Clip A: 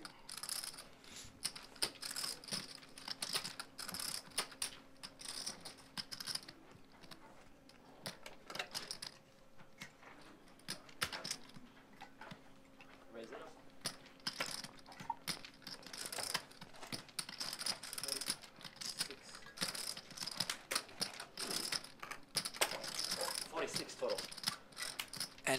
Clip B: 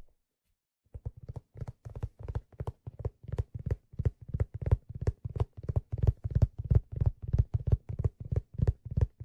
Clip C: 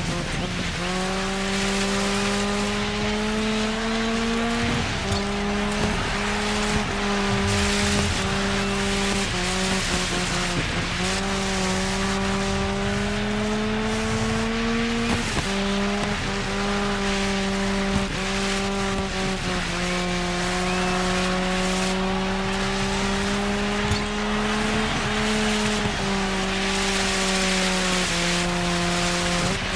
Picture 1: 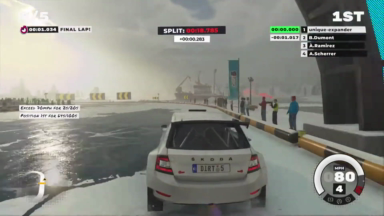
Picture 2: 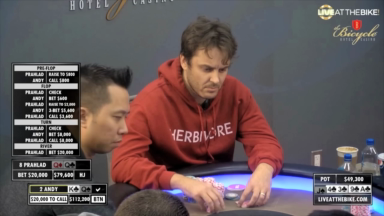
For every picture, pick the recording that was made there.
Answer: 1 C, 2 A